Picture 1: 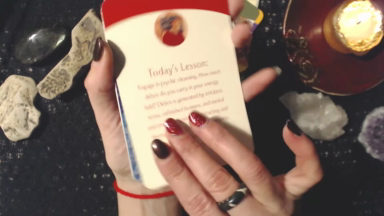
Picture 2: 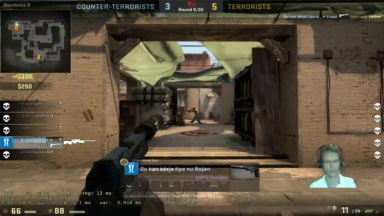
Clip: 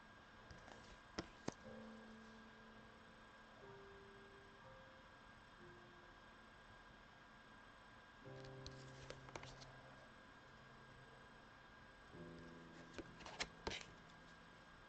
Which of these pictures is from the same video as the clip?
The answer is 1